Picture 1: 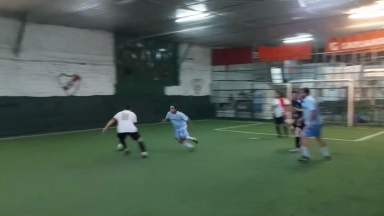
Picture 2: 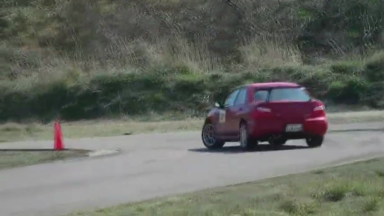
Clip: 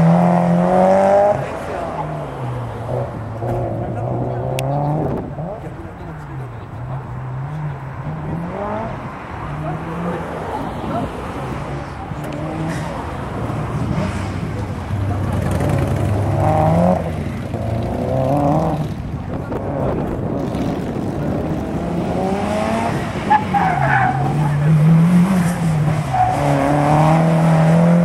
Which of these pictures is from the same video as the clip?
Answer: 2